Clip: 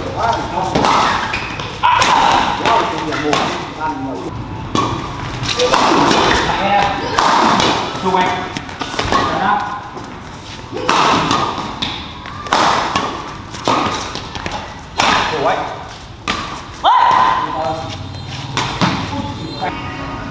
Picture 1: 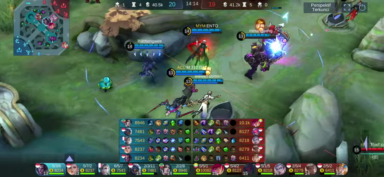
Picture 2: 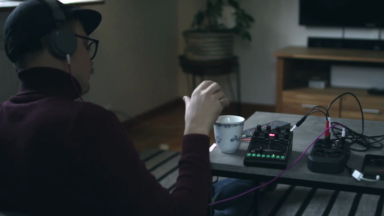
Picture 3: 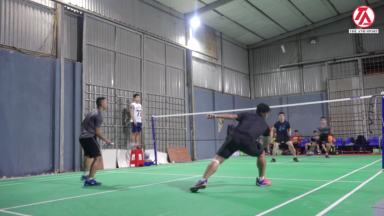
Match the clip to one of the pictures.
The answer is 3